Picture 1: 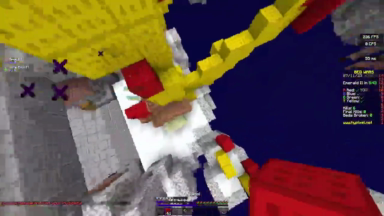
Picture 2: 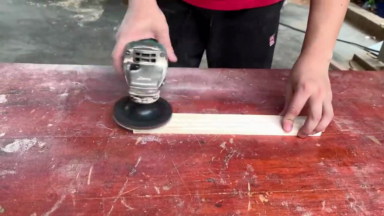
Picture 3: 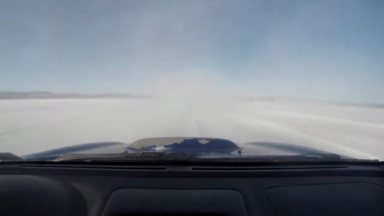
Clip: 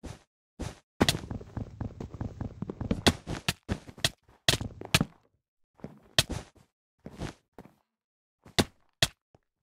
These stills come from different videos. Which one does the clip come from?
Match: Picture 1